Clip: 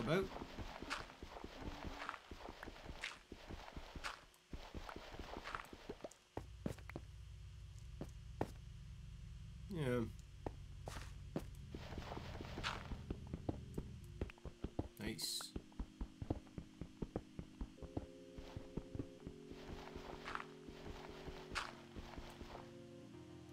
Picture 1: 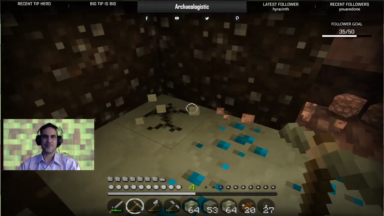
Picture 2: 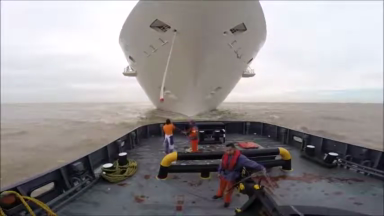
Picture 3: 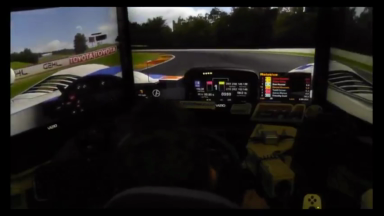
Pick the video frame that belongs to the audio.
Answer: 1